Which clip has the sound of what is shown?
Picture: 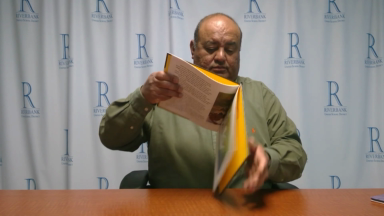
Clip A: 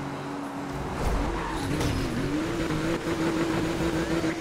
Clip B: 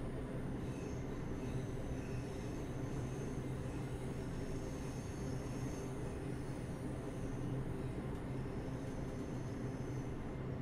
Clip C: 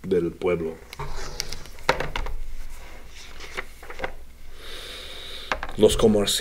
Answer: C